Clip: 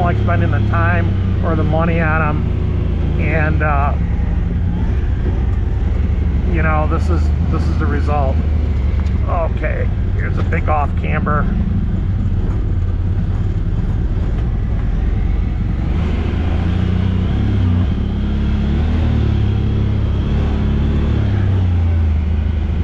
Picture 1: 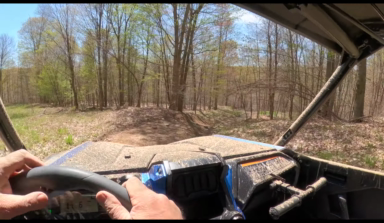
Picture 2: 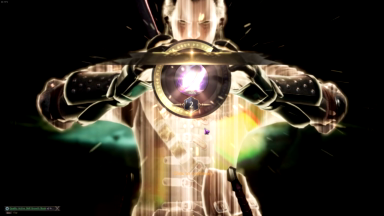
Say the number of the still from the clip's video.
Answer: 1